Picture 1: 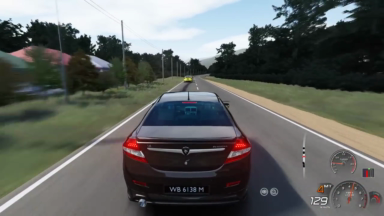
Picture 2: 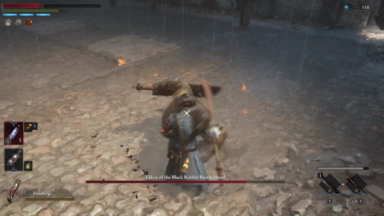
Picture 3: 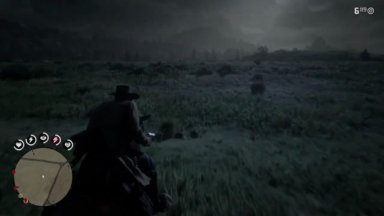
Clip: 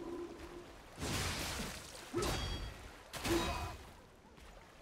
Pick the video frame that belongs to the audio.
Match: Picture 2